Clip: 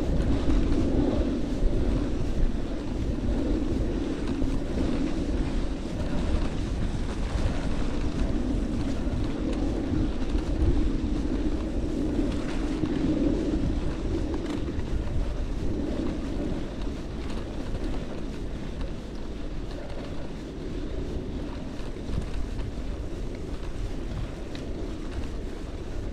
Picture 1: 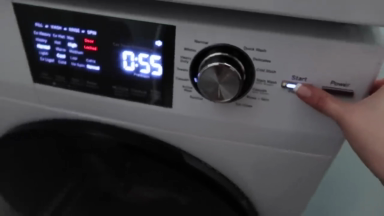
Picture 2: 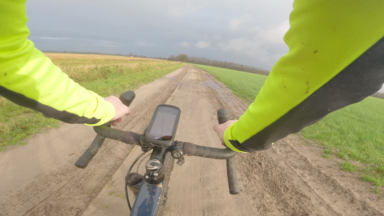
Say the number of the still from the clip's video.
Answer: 2